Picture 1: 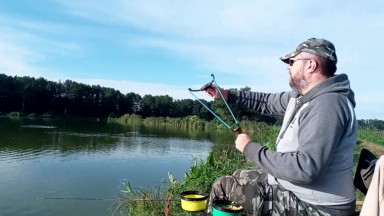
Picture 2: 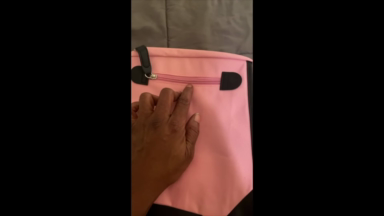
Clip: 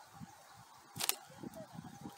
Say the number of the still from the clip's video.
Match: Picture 1